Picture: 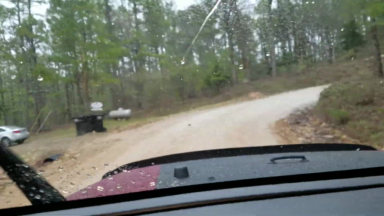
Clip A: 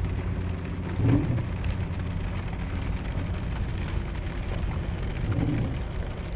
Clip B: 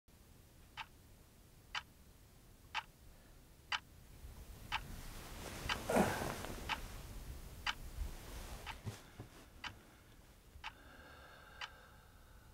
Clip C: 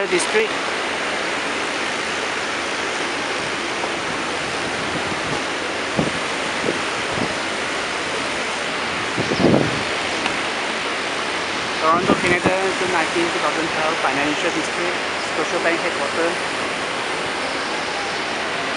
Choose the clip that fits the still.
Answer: A